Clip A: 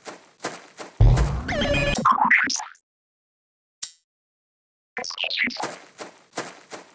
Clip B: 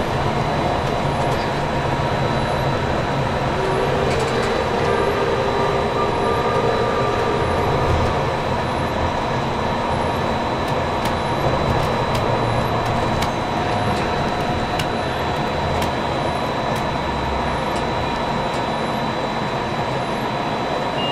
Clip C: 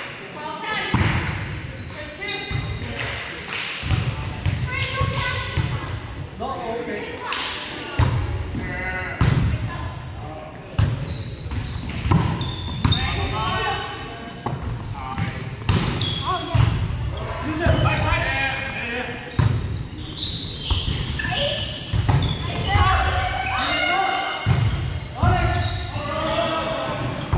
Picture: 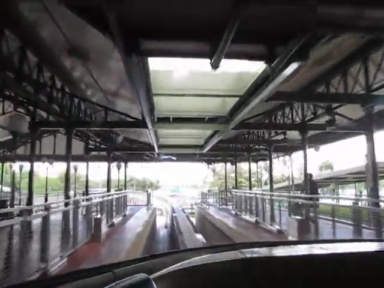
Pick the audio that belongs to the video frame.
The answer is B